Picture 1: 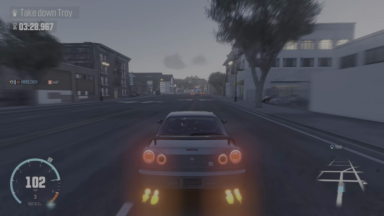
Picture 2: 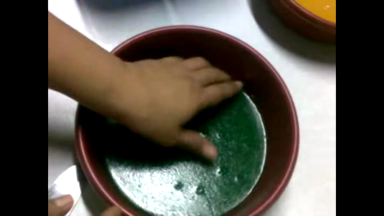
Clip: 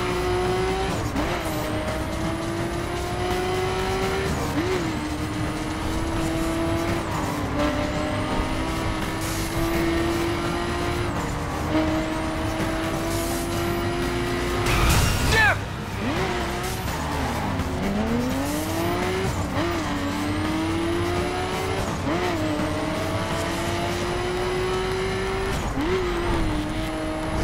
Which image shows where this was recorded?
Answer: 1